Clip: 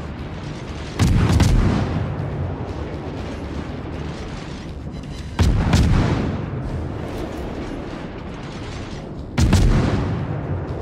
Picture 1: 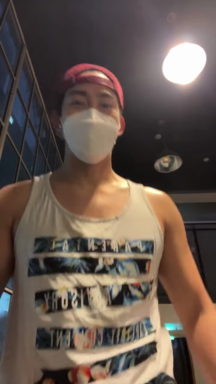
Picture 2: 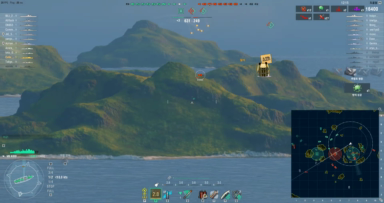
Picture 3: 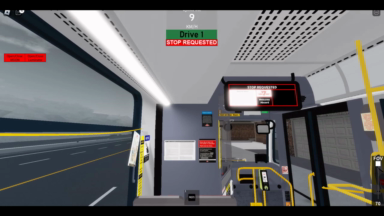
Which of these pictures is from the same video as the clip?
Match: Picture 2